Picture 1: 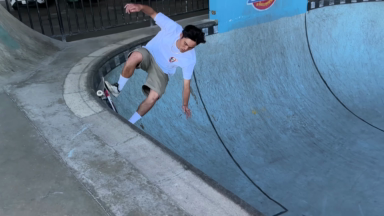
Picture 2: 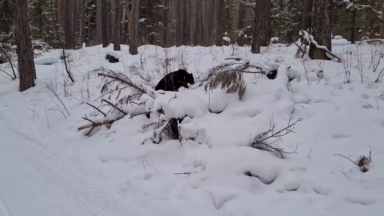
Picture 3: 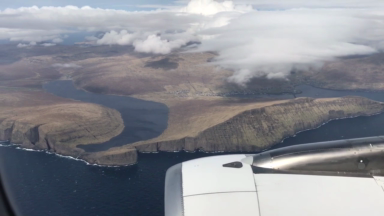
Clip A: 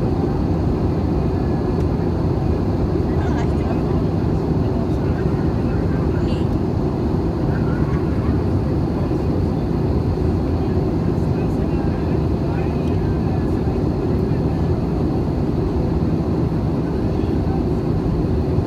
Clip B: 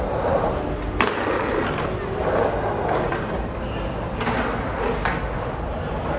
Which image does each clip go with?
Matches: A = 3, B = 1